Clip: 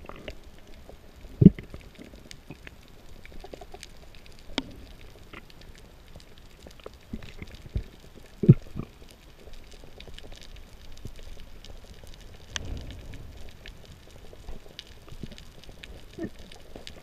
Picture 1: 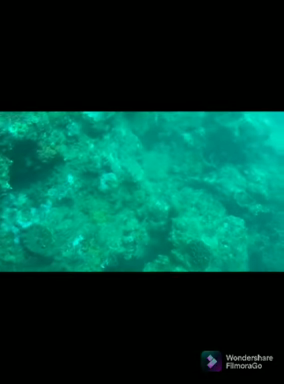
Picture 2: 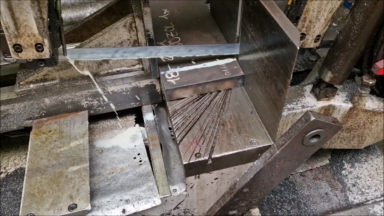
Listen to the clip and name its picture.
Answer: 1